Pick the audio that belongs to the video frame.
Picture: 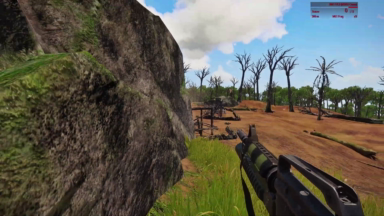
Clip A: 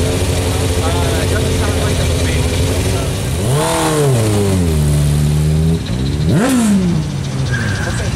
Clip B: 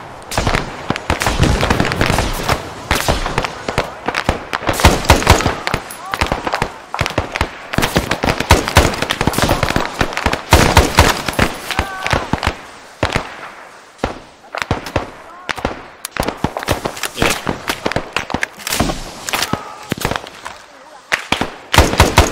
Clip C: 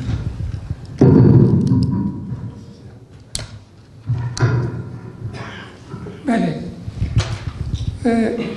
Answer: B